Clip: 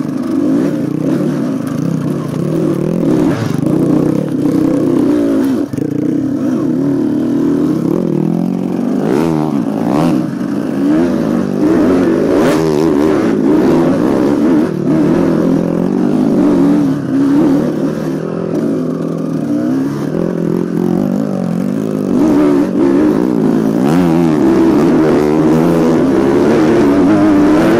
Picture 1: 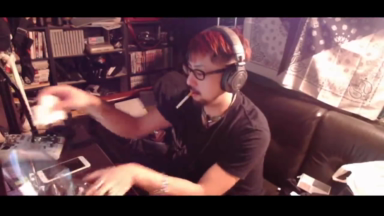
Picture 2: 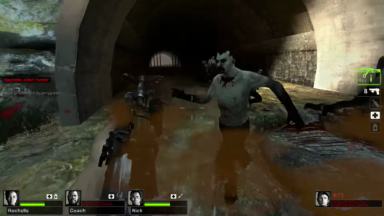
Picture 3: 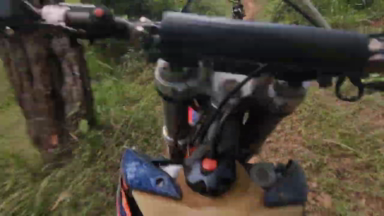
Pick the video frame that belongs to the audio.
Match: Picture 3